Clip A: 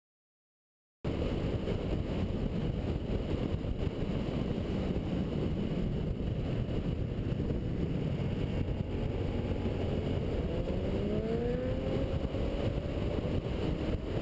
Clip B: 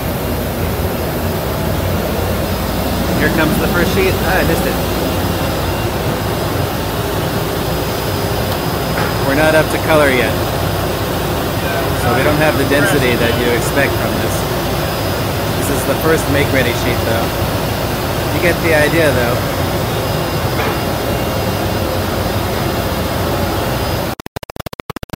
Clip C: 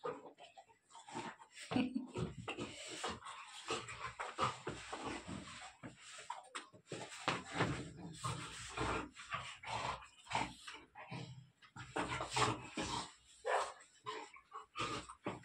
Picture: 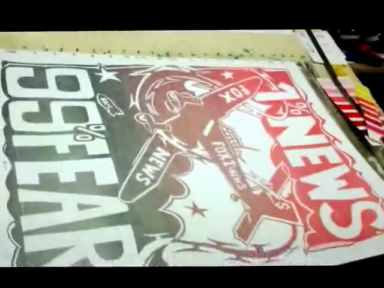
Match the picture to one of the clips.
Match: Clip B